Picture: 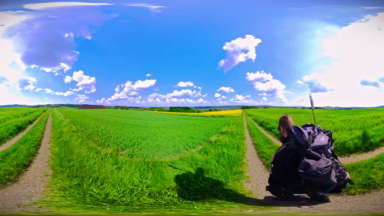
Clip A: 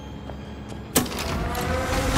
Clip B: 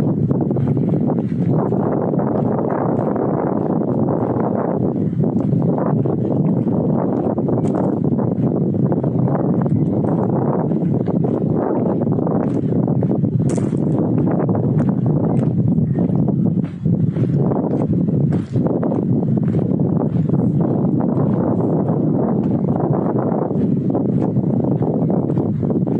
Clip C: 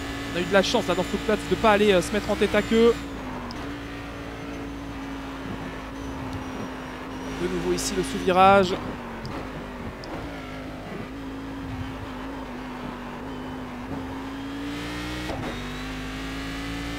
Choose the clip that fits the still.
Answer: B